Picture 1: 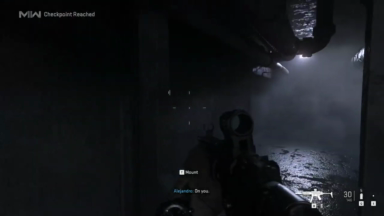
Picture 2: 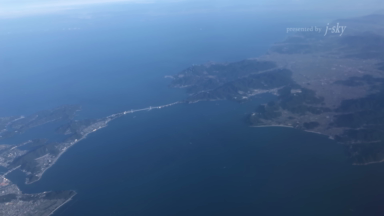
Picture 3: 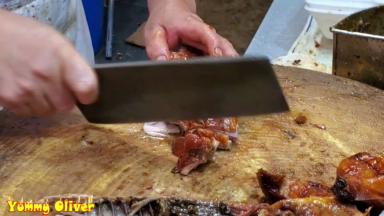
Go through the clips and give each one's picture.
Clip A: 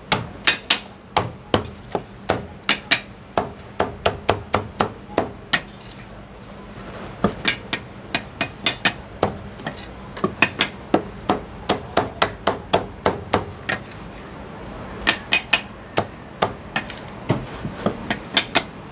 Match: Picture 3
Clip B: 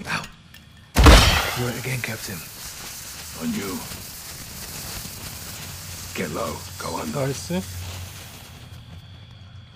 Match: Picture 1